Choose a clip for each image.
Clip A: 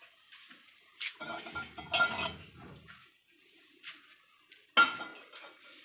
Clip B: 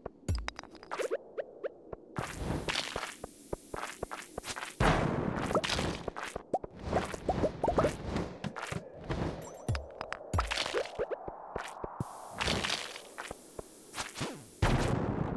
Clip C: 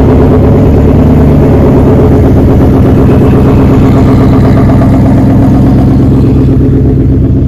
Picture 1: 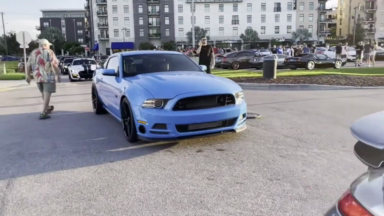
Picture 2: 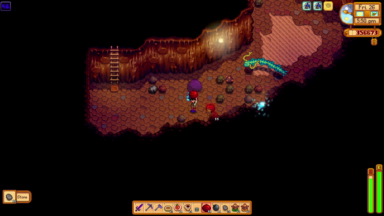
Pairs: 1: C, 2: B